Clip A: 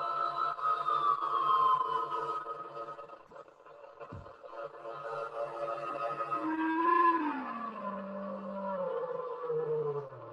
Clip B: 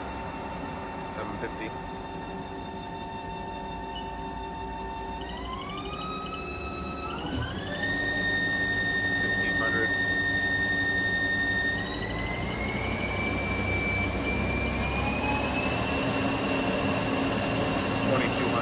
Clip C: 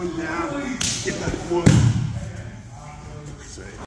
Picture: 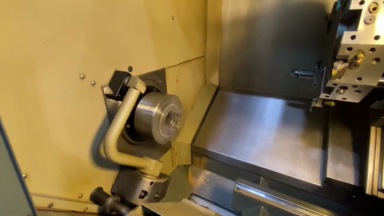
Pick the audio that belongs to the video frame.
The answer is B